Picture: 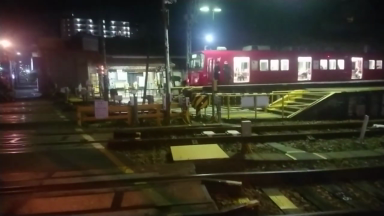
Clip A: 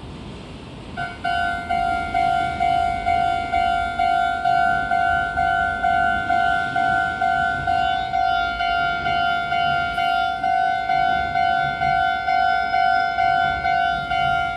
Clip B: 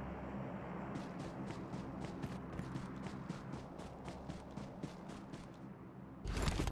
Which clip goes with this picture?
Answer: A